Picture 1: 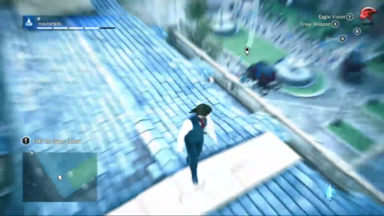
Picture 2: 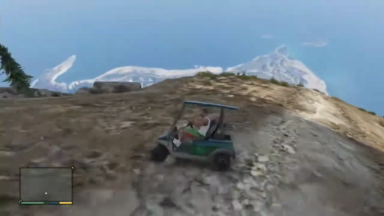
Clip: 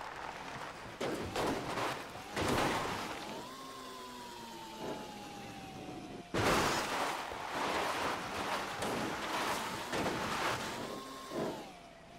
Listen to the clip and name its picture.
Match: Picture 2